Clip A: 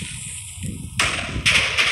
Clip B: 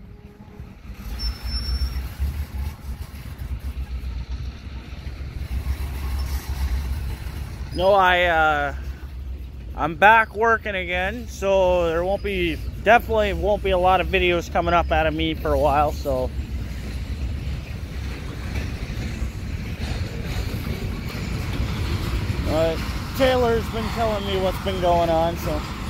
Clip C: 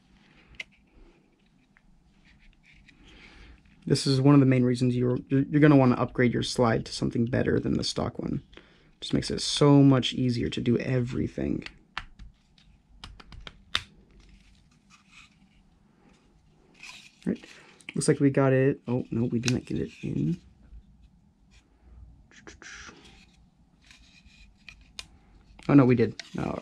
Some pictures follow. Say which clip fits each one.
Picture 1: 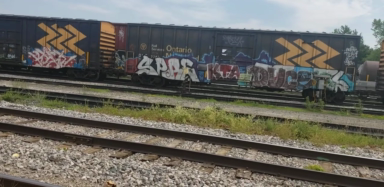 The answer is B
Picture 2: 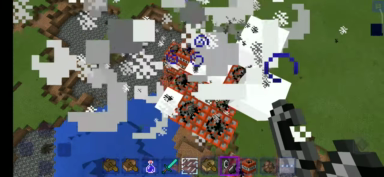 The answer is A